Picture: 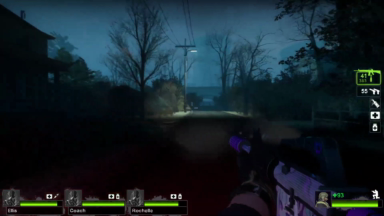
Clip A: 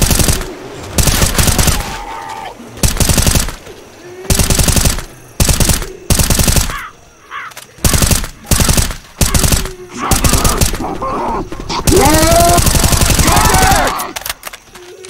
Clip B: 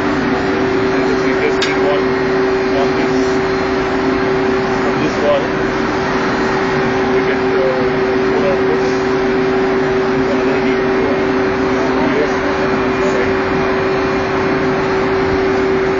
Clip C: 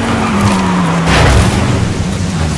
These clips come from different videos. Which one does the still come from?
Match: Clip A